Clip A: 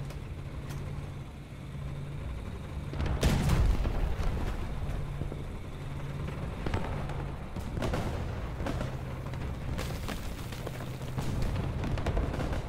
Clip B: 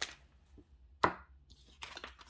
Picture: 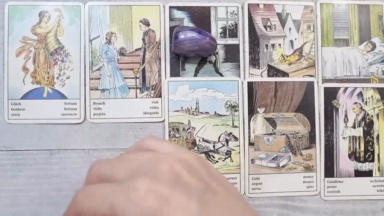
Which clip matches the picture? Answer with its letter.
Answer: B